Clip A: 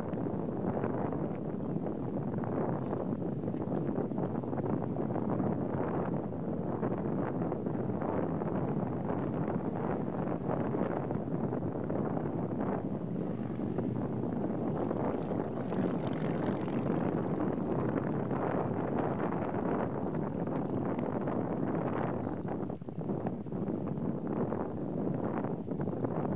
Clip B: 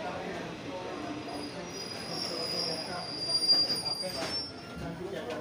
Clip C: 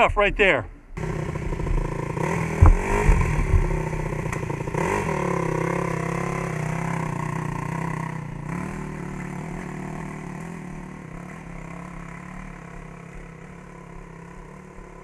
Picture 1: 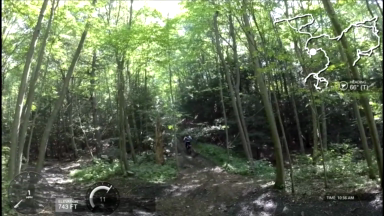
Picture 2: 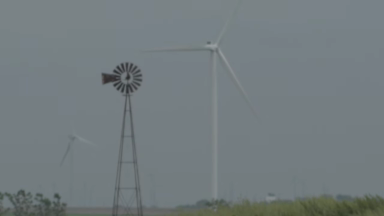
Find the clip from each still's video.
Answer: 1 C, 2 A